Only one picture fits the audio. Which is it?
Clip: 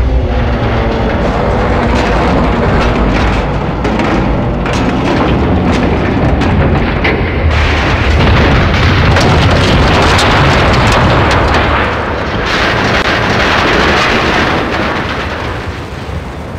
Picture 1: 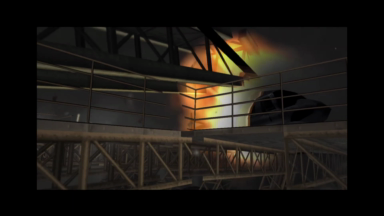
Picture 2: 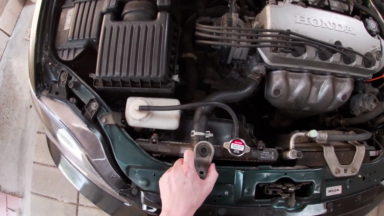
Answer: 1